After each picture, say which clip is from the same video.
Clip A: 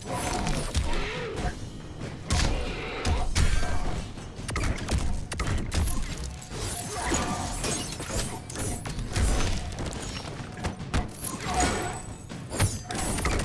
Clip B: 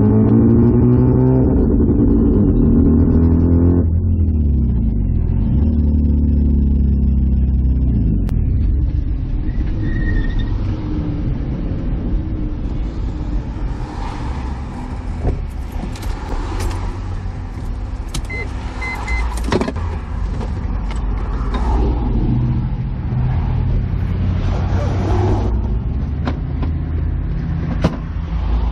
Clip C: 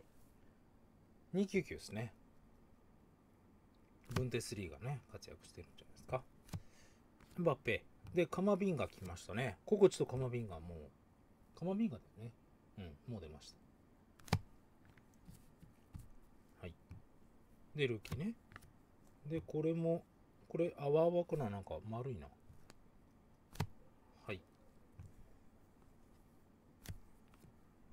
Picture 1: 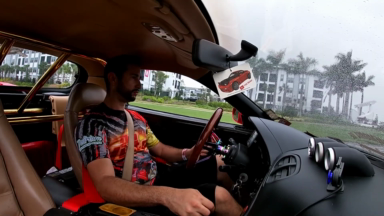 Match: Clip B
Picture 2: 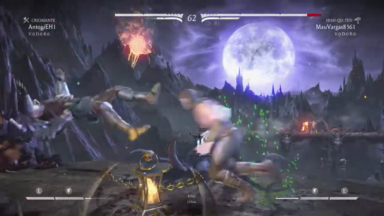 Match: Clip A